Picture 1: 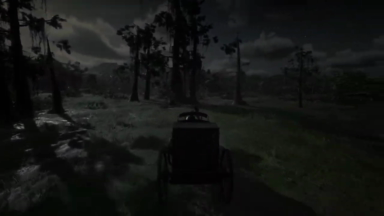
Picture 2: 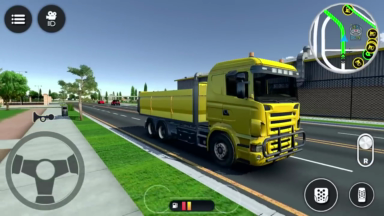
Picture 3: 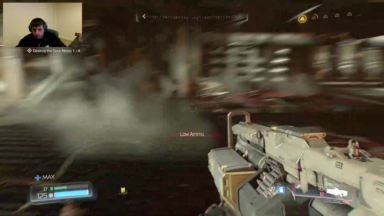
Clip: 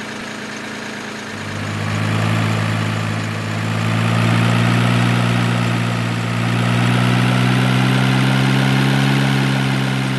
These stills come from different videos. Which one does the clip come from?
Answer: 2